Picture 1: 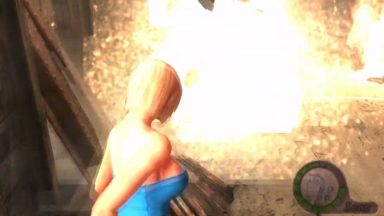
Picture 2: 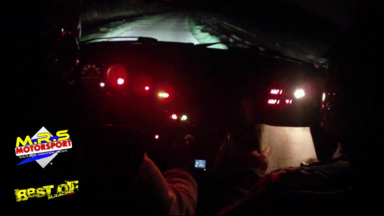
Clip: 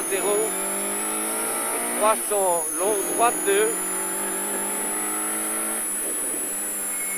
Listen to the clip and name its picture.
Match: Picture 2